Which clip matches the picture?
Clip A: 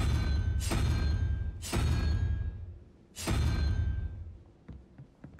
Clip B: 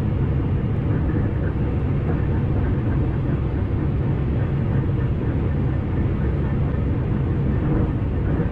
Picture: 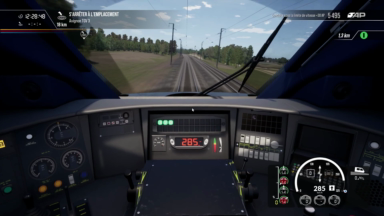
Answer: B